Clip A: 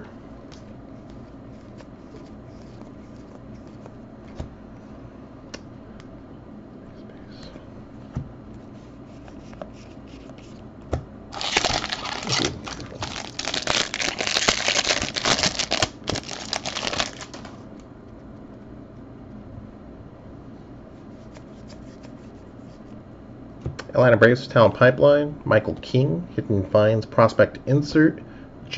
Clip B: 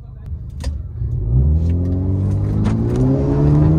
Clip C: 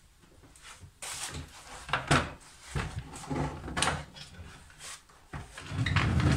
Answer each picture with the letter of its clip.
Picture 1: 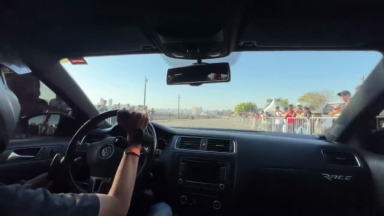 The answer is B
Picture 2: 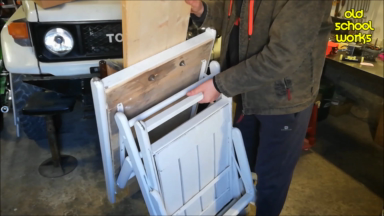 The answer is C